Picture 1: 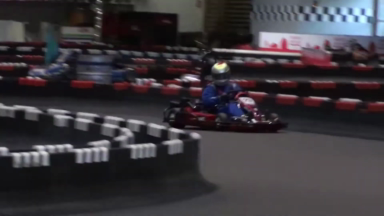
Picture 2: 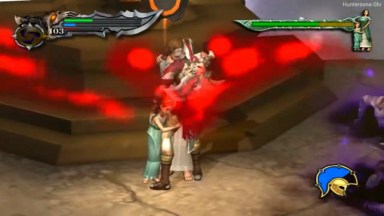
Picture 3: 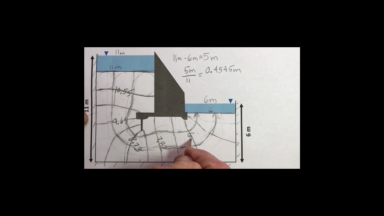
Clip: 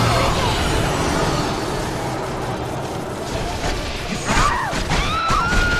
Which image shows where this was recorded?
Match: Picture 2